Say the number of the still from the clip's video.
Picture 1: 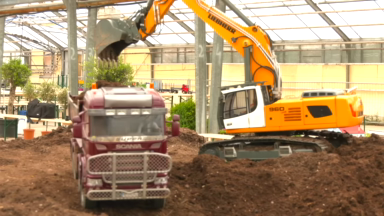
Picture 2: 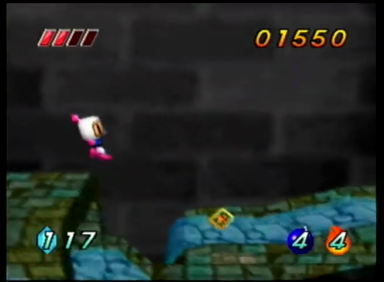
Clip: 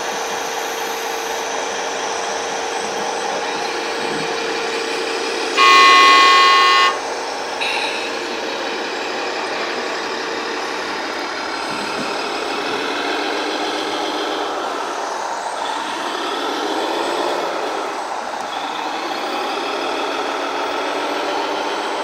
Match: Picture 1